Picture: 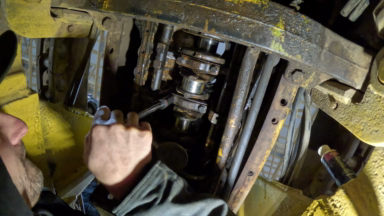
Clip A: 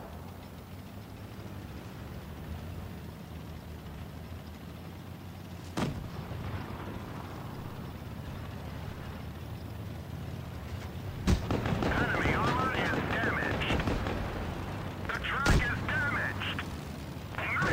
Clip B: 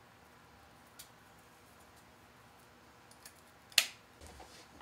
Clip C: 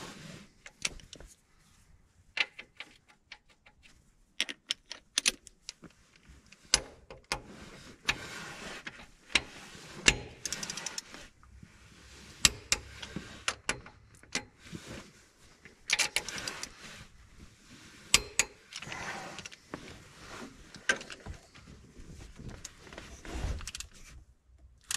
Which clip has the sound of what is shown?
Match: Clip C